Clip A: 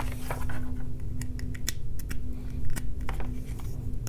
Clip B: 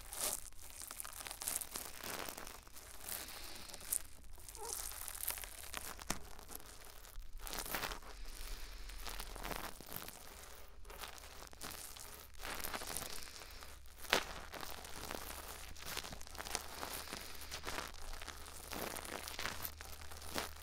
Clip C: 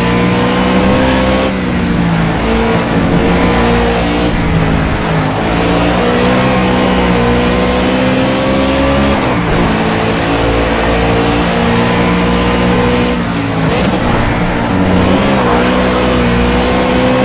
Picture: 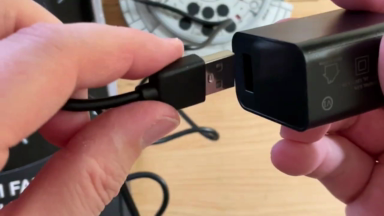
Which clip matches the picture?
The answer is A